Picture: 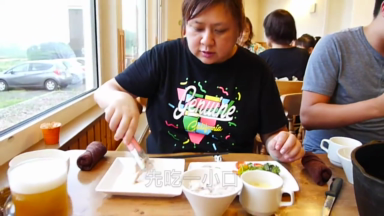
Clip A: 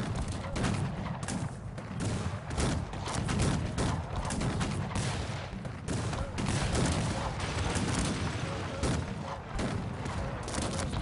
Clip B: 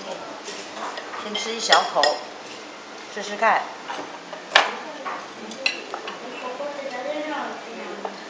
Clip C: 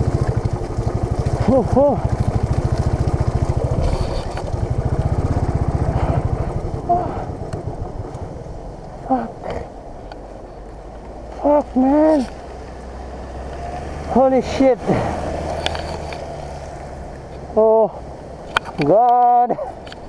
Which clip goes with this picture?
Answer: B